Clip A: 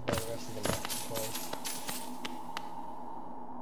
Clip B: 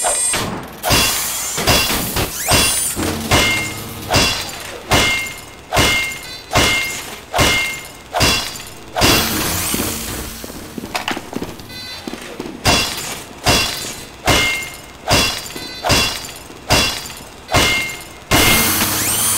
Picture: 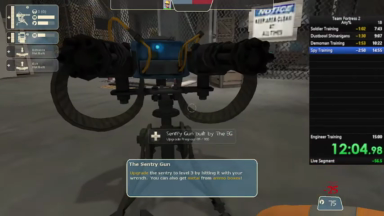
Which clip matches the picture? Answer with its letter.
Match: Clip B